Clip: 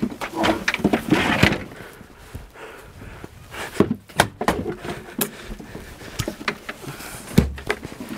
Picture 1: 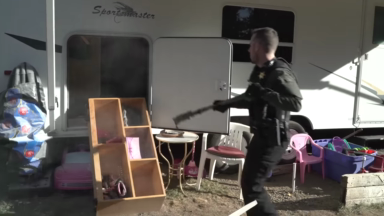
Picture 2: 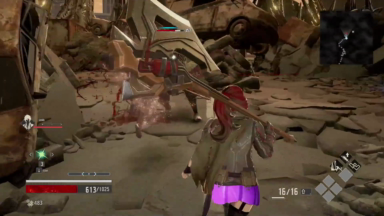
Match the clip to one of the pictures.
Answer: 1